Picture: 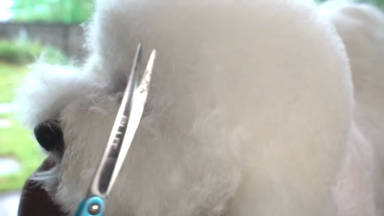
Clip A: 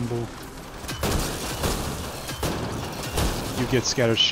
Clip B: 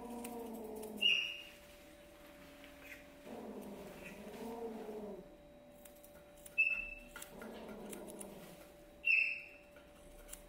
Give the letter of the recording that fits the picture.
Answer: B